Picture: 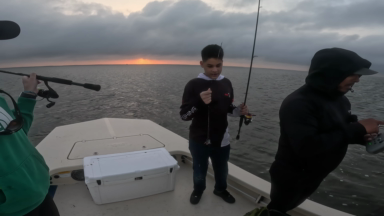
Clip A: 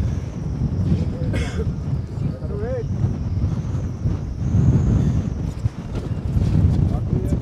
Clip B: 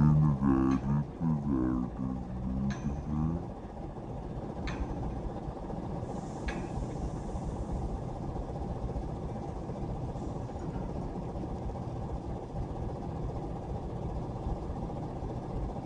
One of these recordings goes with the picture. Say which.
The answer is A